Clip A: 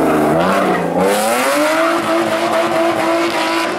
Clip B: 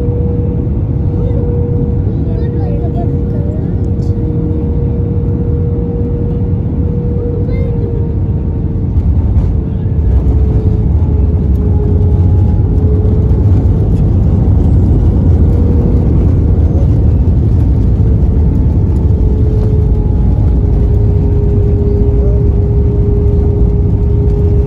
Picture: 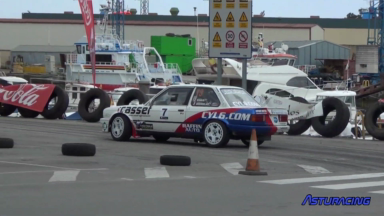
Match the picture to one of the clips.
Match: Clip A